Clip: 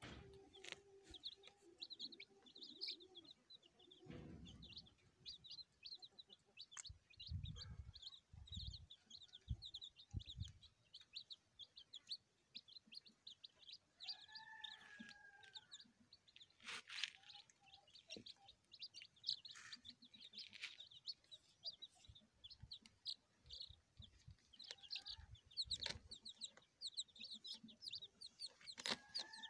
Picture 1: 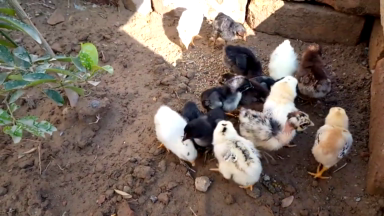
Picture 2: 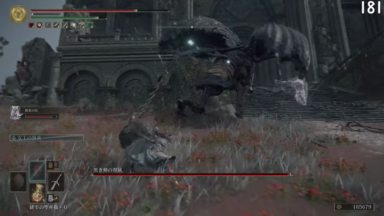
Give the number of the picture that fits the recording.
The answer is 1